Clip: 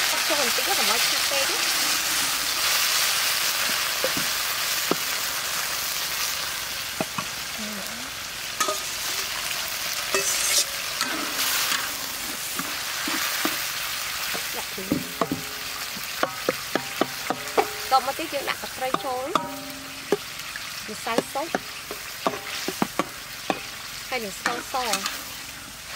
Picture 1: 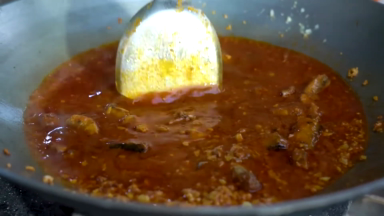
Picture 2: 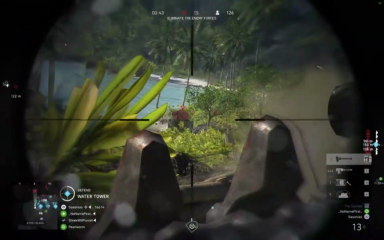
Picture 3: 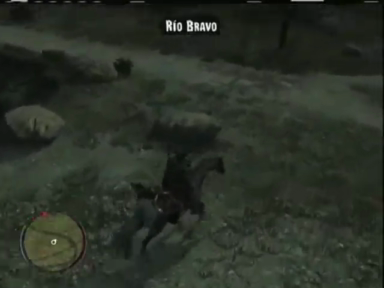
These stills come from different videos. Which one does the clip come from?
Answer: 1